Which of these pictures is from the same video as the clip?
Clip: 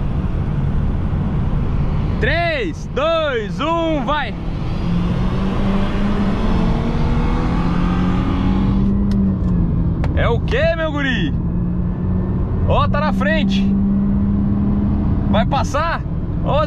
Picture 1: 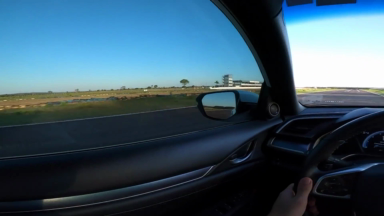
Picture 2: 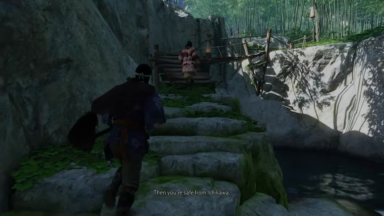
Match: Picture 1